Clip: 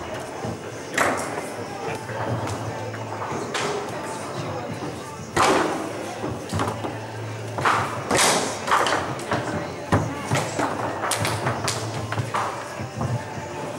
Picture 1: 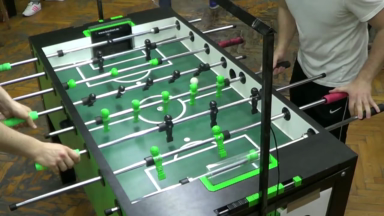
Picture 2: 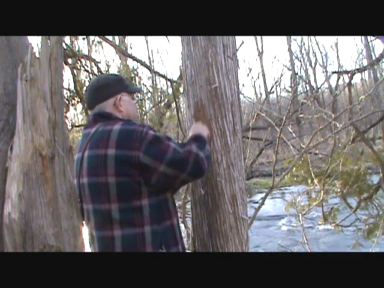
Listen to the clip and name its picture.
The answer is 1